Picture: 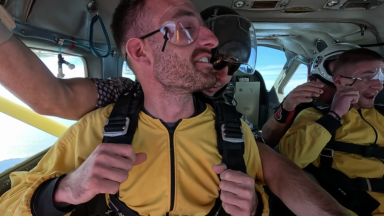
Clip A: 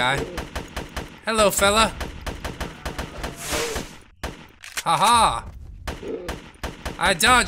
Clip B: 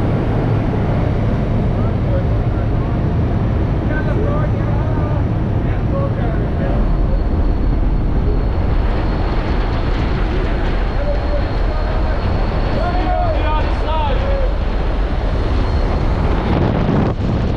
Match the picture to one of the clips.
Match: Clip B